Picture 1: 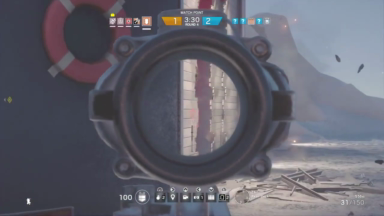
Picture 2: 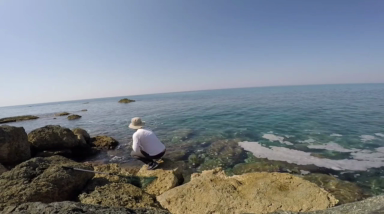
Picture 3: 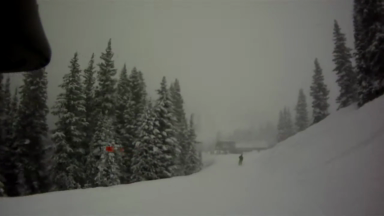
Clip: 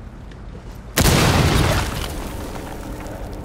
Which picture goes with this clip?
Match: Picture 1